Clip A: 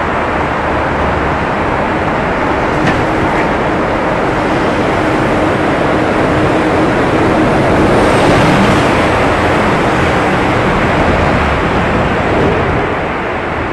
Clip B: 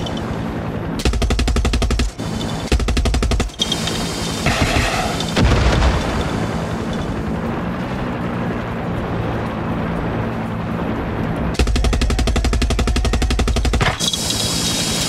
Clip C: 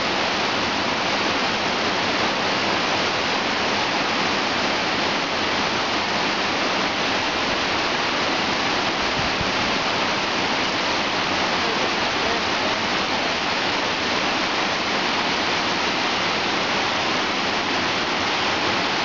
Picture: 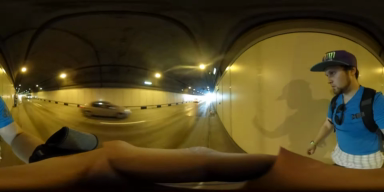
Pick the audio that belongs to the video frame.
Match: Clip A